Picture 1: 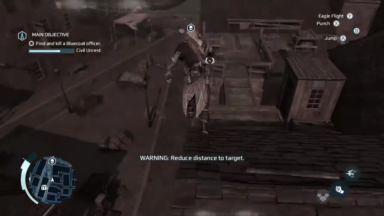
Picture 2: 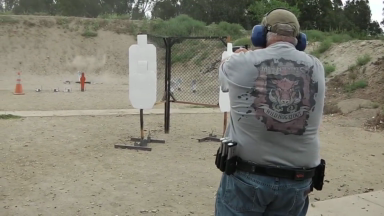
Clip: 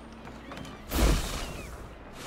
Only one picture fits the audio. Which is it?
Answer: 1